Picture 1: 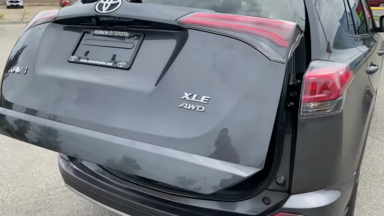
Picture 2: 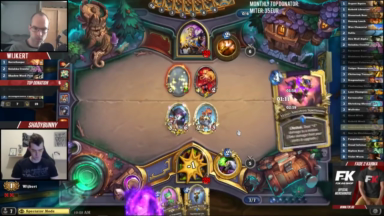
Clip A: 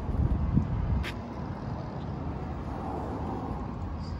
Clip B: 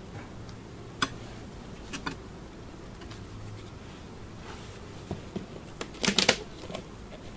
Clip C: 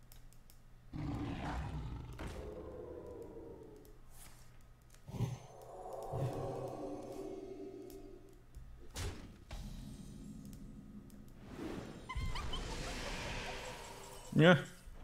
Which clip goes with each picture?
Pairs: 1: A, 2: C